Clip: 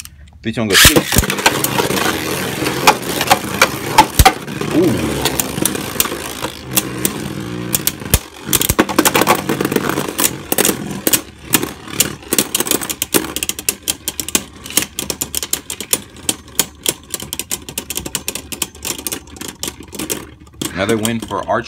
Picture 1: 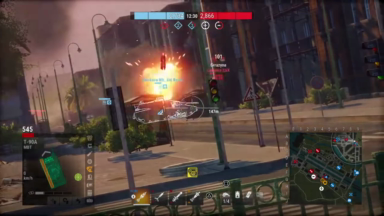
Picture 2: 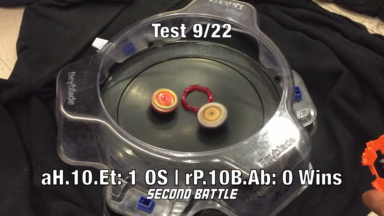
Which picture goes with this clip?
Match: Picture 2